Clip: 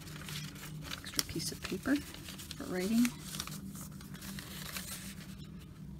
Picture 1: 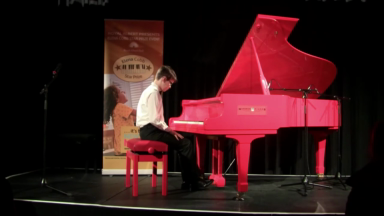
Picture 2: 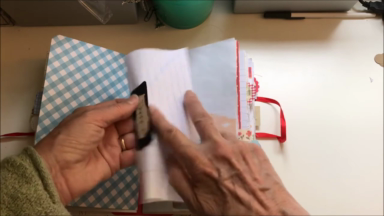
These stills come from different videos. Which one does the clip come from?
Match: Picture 2